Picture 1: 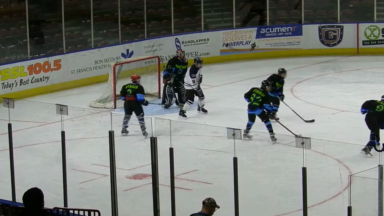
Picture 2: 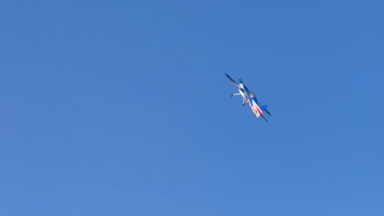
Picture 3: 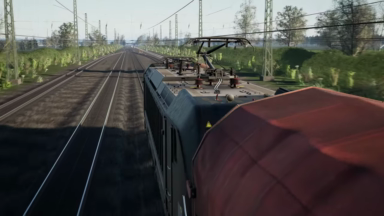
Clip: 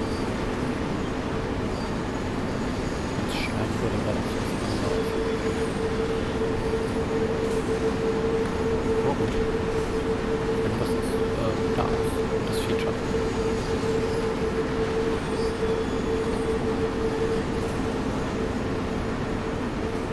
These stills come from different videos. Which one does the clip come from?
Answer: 3